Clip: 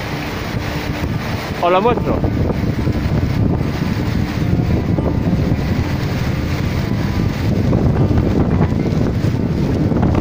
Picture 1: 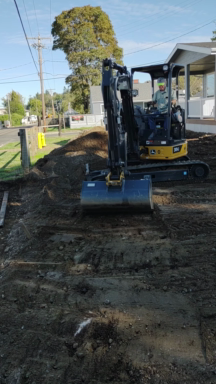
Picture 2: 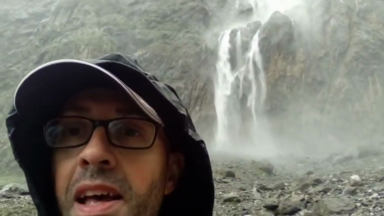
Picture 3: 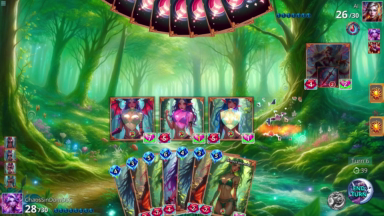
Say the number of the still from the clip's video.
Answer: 2